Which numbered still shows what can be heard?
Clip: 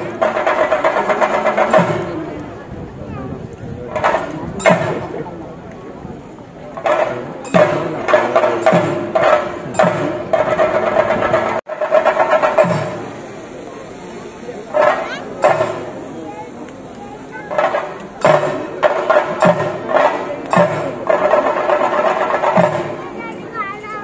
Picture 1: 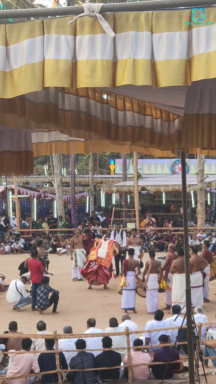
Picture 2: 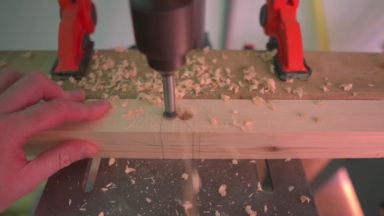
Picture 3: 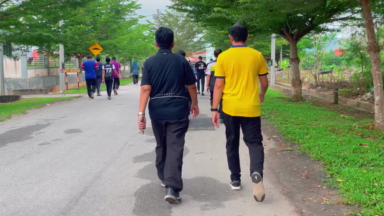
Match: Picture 1